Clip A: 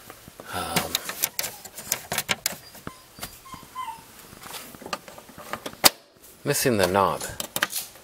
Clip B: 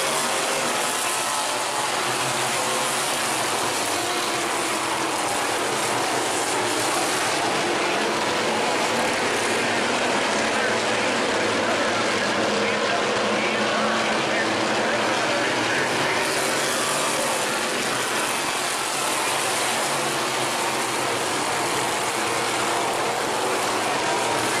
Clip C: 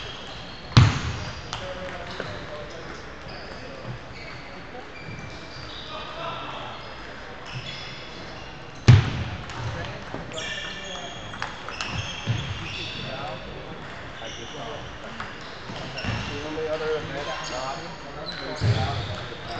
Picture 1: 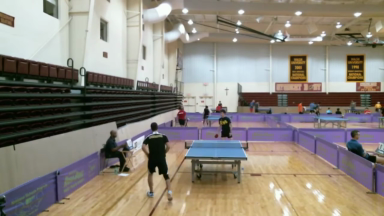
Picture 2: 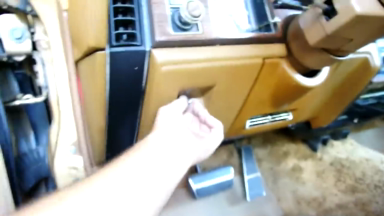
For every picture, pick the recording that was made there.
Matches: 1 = C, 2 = A